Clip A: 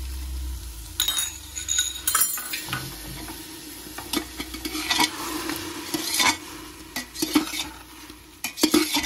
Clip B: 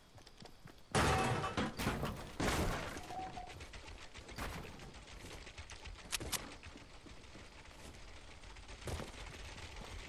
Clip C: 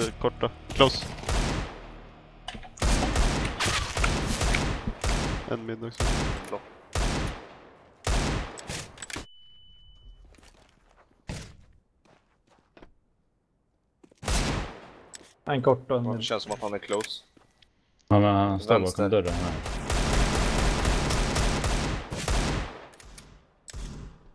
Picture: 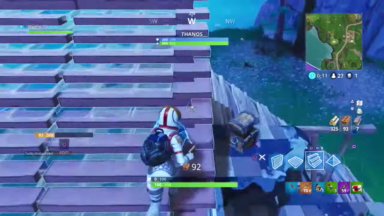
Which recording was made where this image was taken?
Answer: B